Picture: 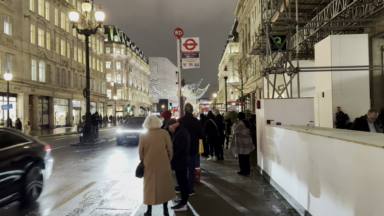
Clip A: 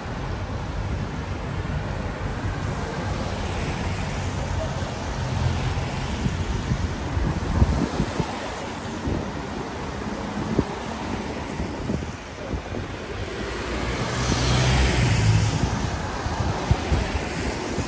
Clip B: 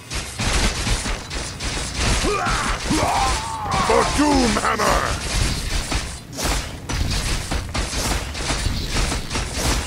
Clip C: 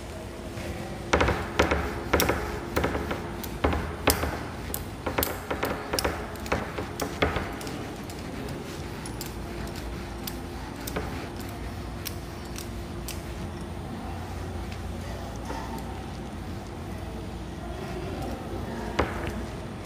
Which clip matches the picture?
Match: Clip A